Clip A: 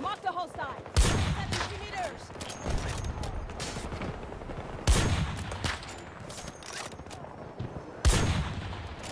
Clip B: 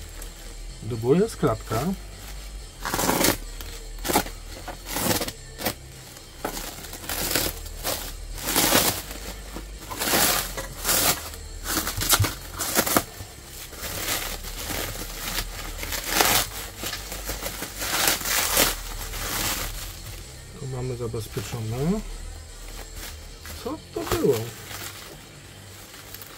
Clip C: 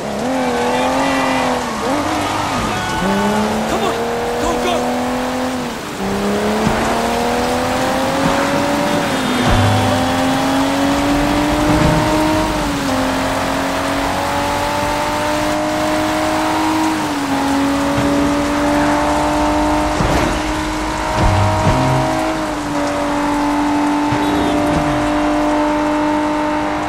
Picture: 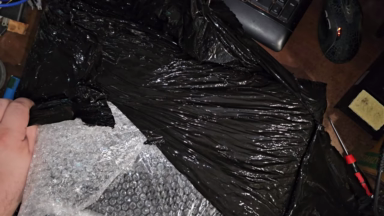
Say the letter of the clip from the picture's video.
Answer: B